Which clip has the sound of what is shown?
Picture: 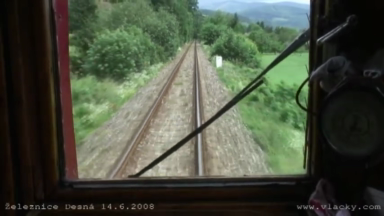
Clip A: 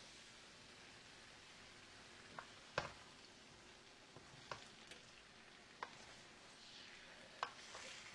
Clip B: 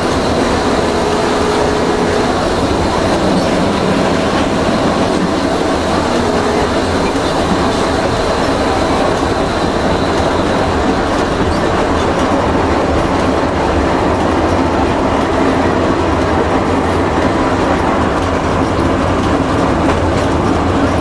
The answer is B